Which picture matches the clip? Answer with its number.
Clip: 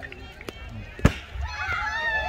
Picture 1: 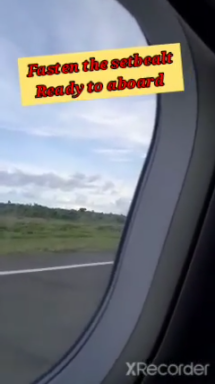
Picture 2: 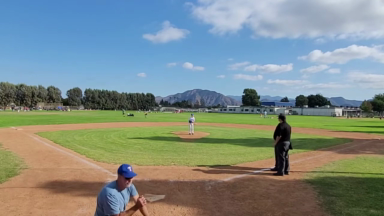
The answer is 2